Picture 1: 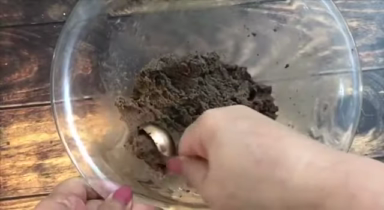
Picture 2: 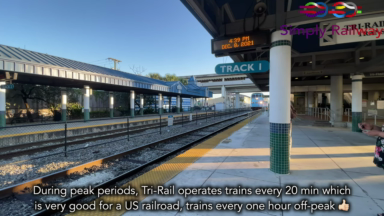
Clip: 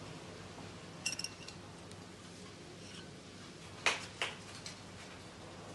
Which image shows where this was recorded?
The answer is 1